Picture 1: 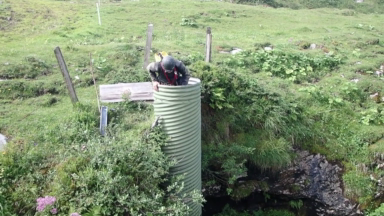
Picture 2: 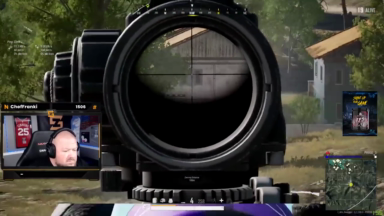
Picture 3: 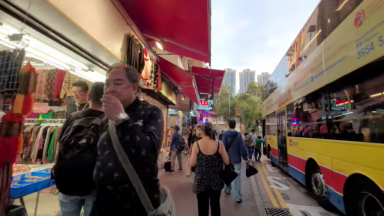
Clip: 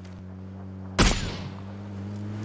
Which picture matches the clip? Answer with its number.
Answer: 2